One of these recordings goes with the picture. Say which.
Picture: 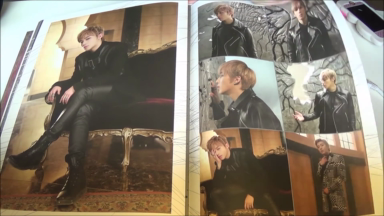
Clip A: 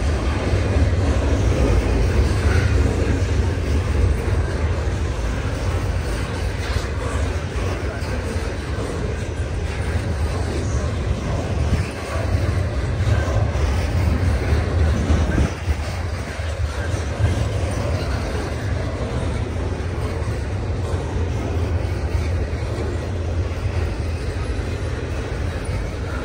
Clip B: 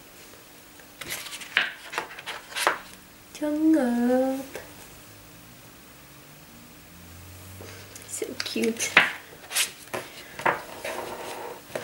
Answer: B